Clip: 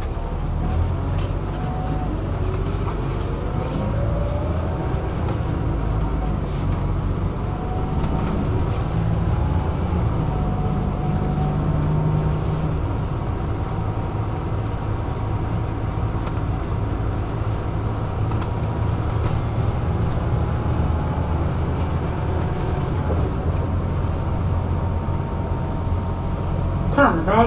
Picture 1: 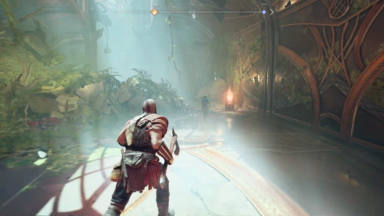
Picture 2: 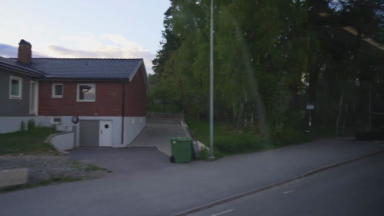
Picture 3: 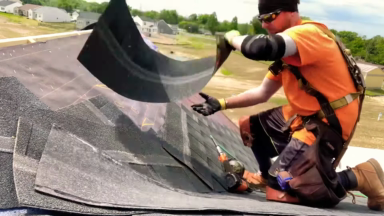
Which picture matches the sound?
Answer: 2